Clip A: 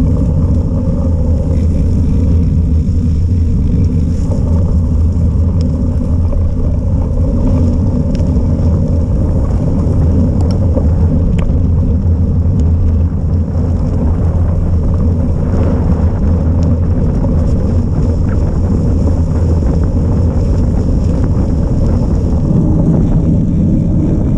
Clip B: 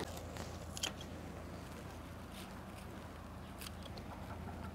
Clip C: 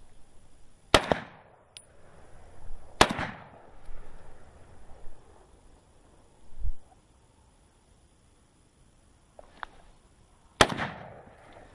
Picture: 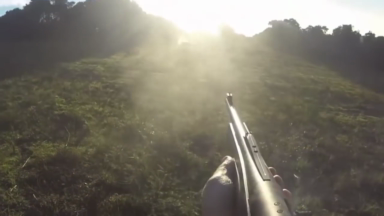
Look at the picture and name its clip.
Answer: C